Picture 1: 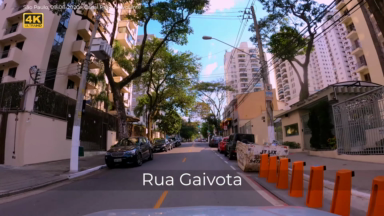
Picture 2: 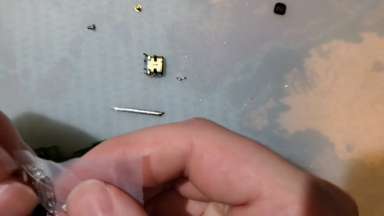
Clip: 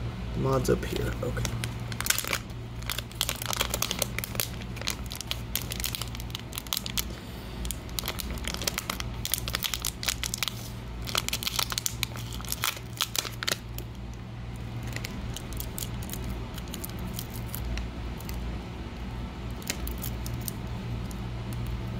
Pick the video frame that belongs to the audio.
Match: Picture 2